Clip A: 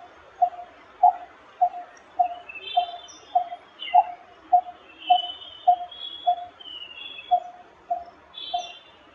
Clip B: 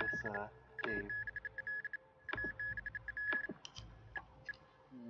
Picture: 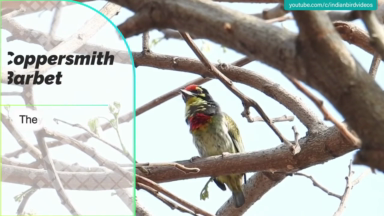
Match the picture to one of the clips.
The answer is A